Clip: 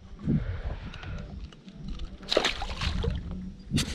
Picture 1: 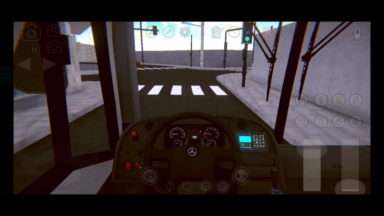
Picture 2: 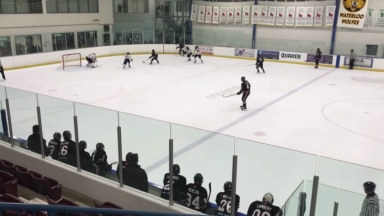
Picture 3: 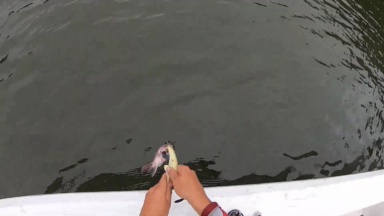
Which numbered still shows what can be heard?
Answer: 3